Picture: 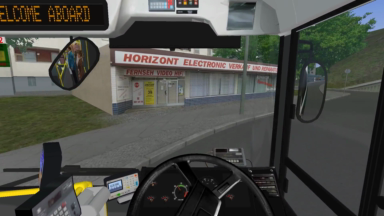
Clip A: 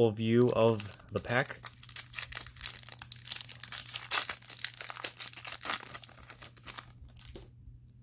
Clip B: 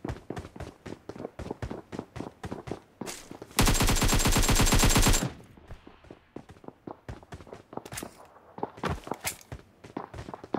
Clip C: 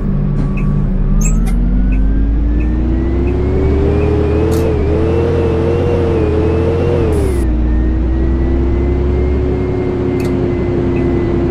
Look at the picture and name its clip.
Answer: C